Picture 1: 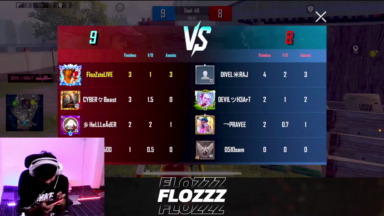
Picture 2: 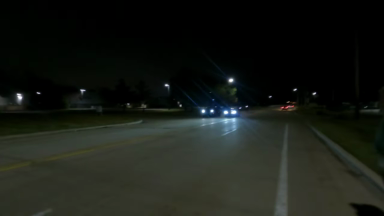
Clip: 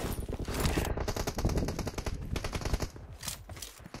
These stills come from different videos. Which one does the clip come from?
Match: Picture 1